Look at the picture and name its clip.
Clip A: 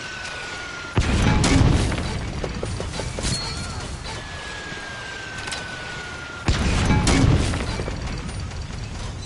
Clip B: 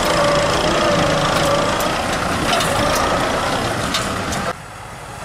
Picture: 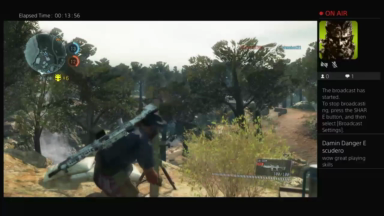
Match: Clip A